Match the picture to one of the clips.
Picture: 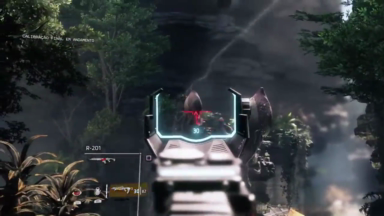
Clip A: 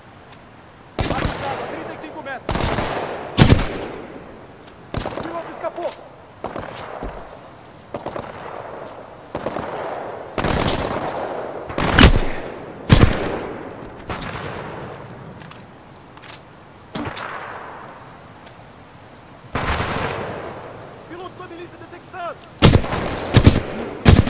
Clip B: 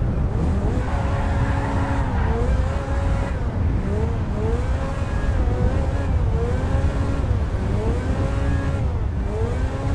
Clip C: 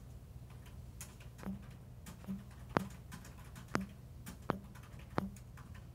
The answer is A